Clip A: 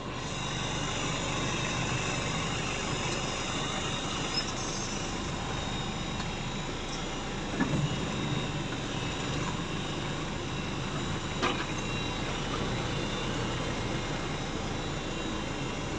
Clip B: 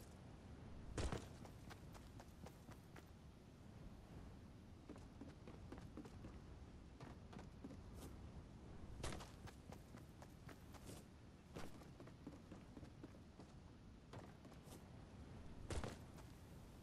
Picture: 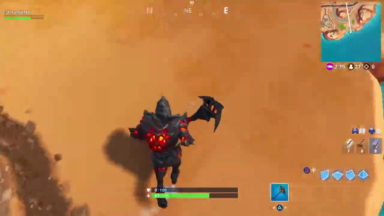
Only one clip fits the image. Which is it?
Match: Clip B